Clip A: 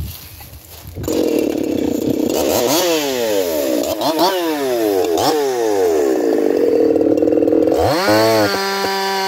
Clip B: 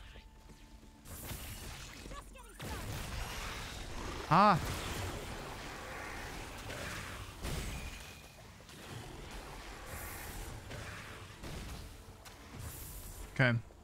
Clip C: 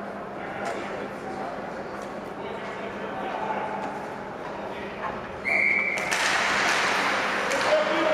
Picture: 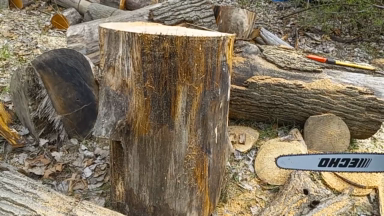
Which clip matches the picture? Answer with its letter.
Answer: A